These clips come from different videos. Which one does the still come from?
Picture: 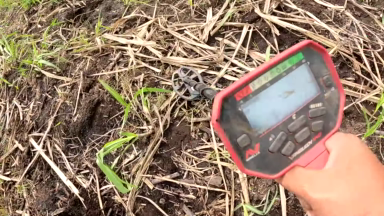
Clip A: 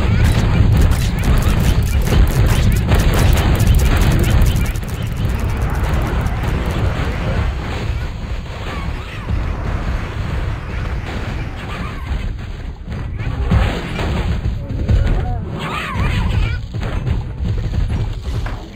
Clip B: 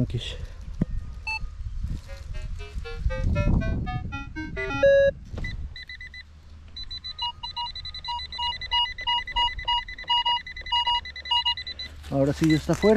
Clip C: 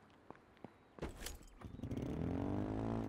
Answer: B